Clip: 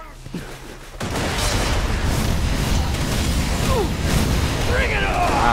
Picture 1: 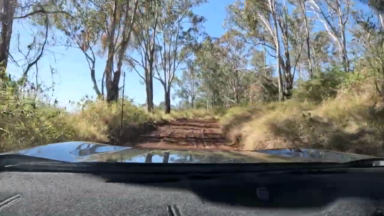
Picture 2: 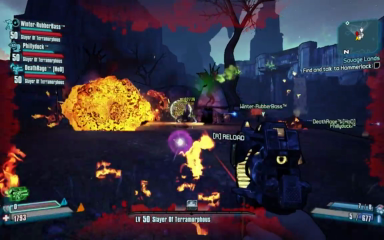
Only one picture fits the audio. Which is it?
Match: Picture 2